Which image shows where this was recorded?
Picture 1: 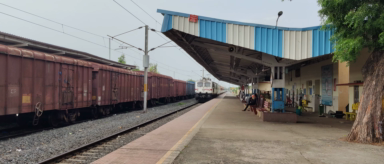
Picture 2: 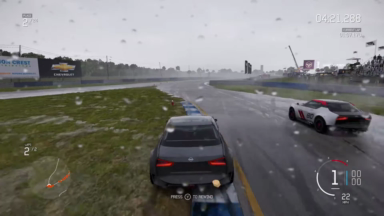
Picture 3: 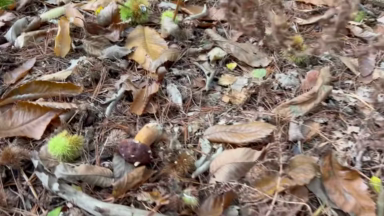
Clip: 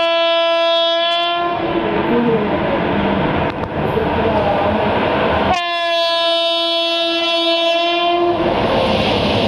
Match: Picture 1